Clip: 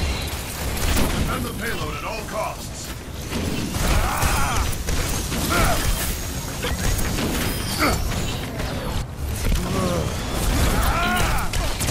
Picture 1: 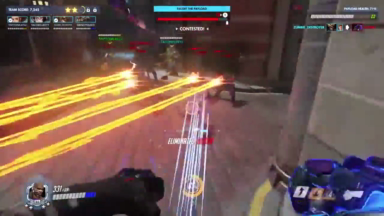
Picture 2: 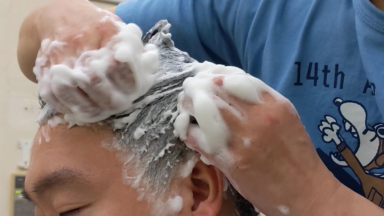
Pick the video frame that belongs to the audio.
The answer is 1